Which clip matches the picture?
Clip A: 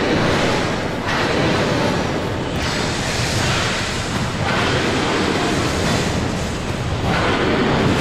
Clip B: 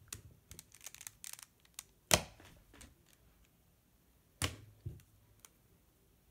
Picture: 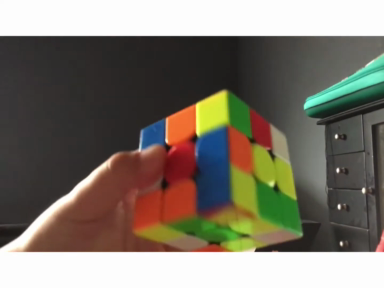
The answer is B